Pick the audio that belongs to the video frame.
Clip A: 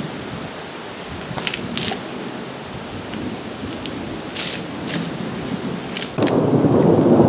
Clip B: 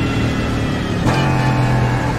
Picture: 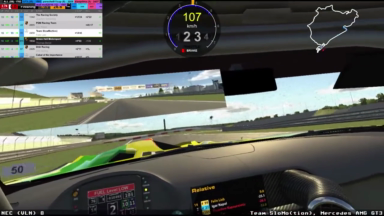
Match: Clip B